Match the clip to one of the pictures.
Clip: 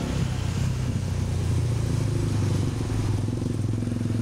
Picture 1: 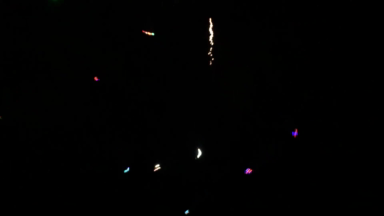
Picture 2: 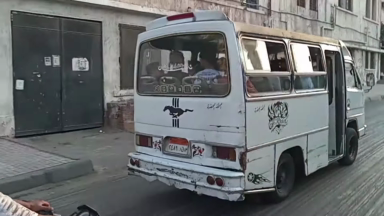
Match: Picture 2